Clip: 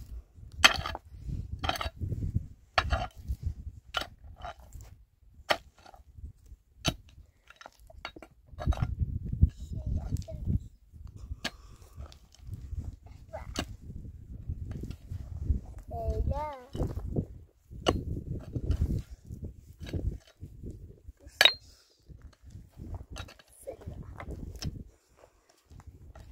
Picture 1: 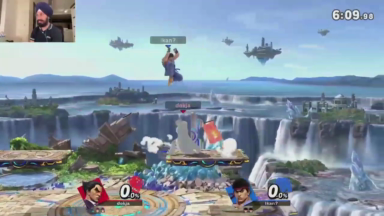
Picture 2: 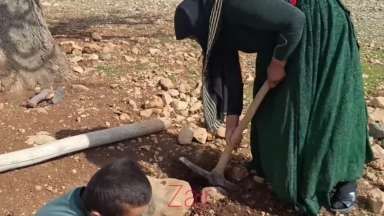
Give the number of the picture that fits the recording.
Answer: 2